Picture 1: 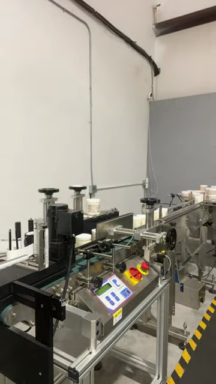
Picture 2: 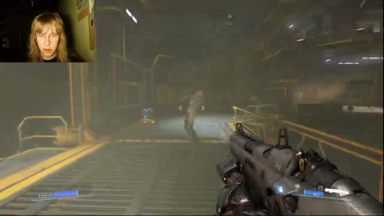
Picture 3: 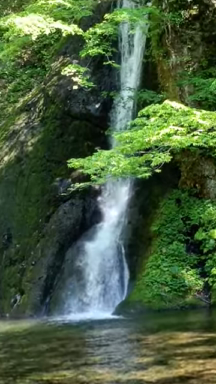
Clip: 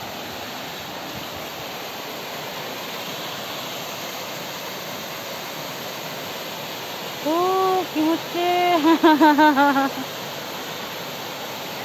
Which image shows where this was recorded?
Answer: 3